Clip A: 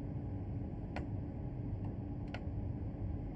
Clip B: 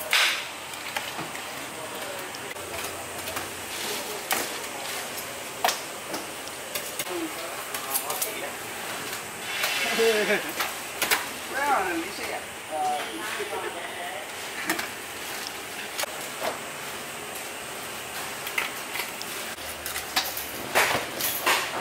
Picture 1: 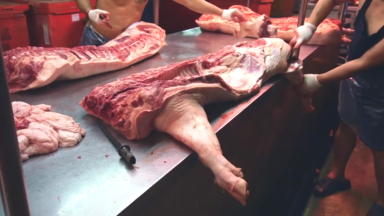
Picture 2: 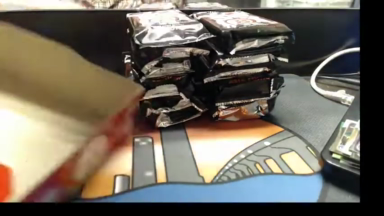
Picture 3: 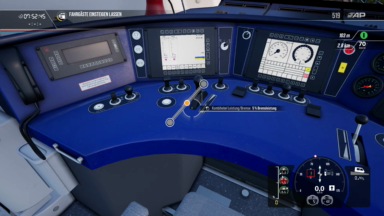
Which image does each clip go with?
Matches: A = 3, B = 1